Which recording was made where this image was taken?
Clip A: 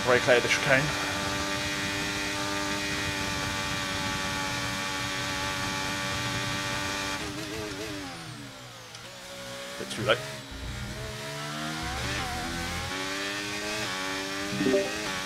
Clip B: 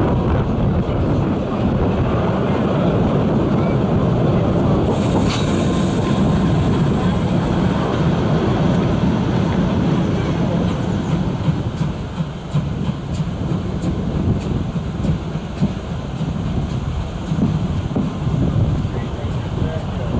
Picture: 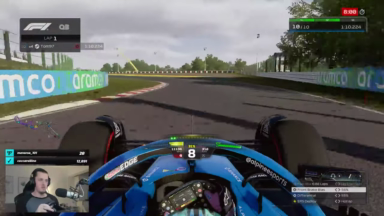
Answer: A